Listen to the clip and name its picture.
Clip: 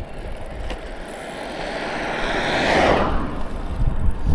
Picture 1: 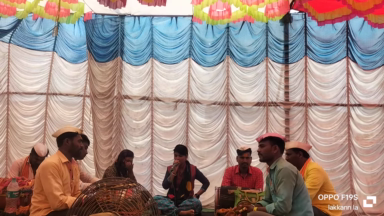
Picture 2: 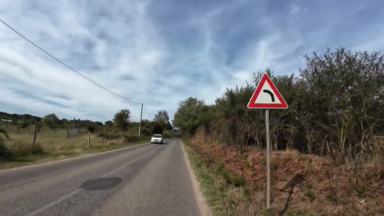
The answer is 2